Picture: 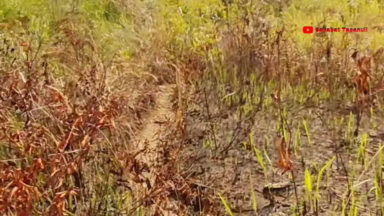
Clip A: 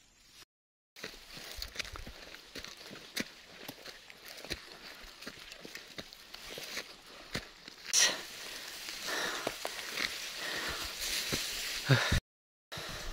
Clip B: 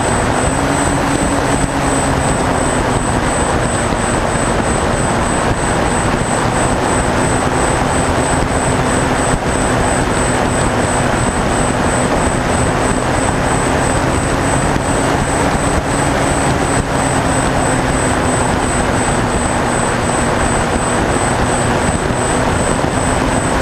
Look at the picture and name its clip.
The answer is A